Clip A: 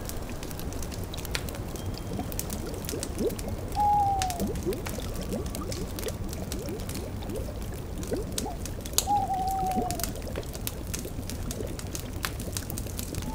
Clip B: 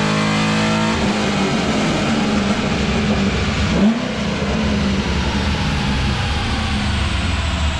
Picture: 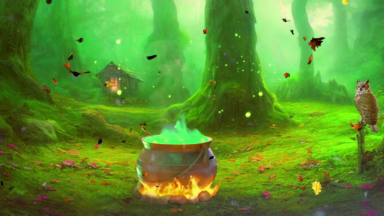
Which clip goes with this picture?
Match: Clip A